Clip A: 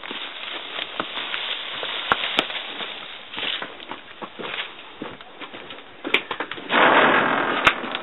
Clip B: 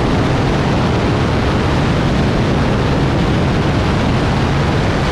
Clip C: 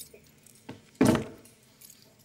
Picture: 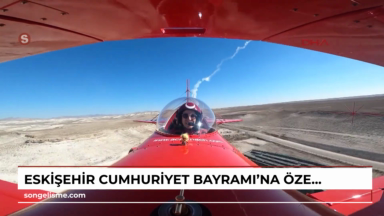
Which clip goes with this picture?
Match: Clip B